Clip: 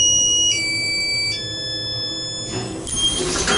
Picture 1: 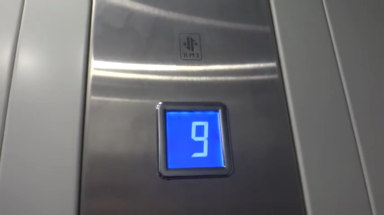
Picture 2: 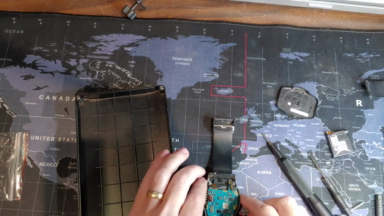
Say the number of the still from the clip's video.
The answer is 1